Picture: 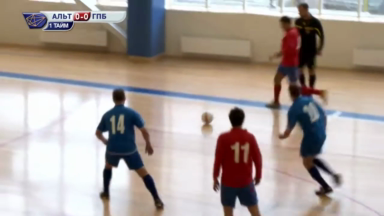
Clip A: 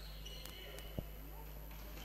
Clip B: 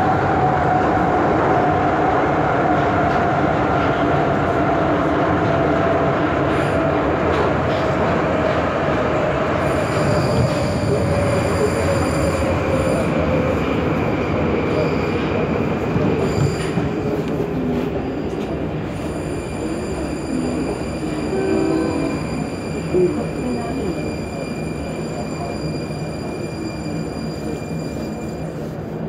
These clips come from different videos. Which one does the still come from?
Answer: A